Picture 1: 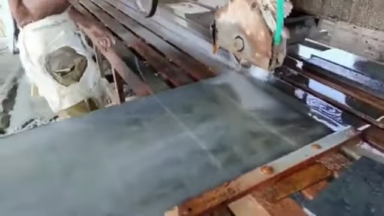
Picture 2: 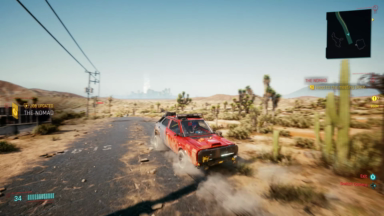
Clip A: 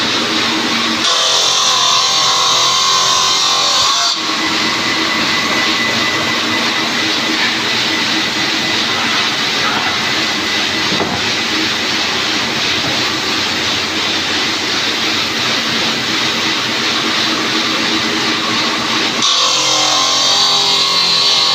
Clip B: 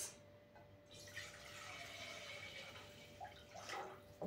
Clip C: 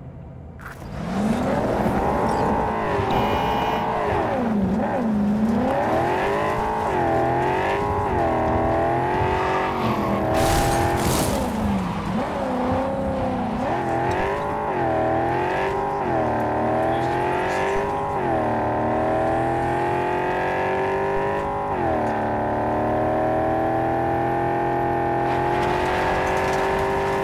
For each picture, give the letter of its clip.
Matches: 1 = A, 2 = C